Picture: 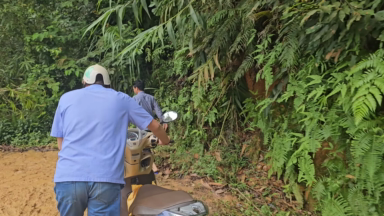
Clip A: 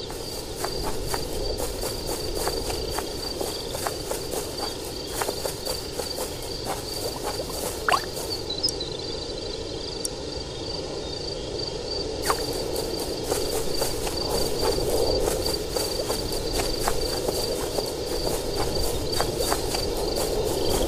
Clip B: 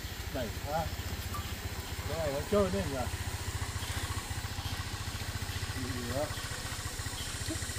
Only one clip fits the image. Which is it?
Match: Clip B